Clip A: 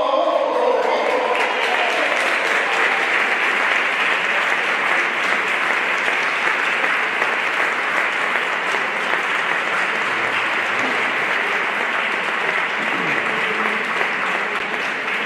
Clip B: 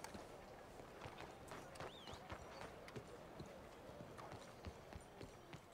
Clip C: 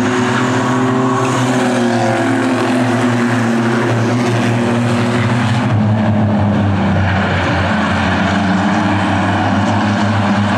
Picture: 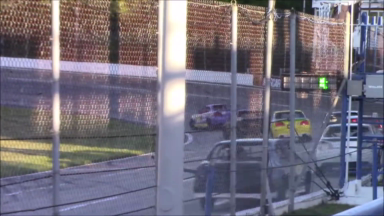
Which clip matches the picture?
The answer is C